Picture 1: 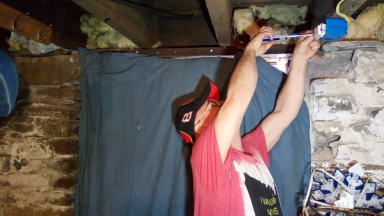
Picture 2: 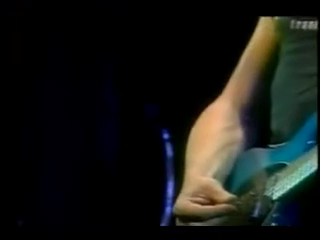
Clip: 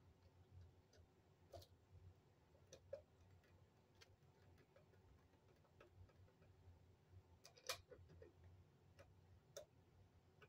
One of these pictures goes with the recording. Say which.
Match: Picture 1